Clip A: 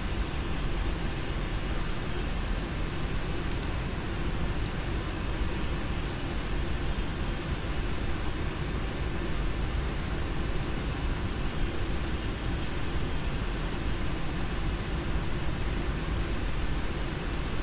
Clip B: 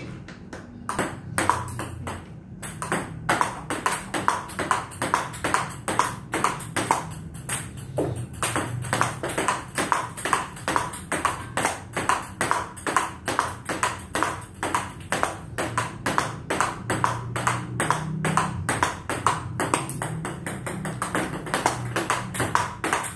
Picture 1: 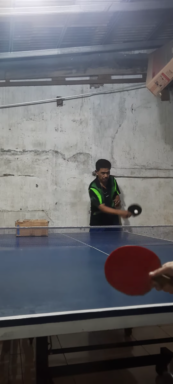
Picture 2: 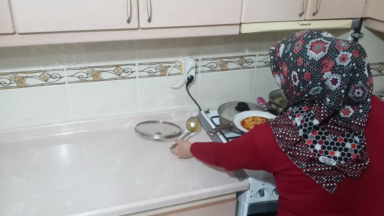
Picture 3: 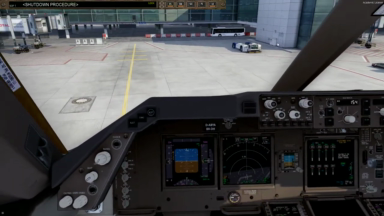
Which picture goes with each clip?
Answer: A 3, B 1